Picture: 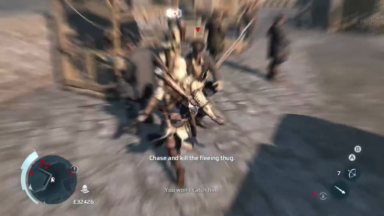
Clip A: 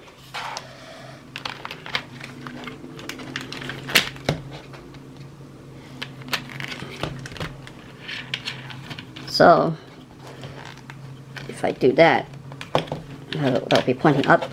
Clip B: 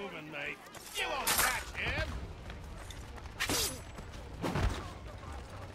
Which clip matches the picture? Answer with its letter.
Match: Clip B